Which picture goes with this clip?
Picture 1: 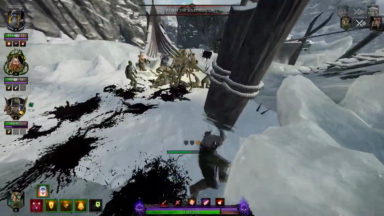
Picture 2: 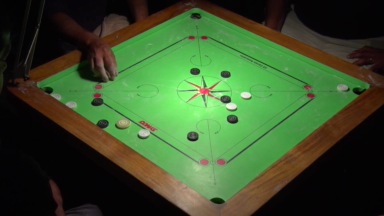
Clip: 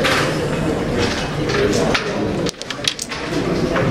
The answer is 2